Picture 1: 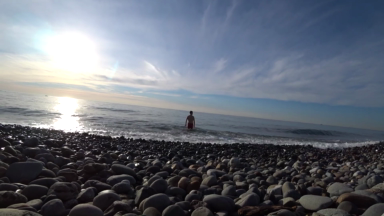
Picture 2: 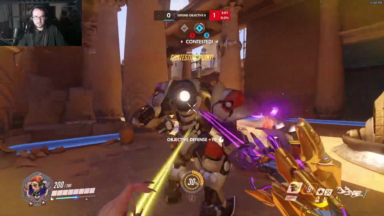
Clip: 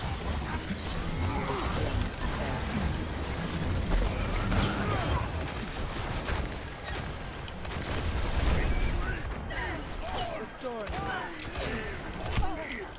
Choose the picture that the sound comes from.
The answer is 2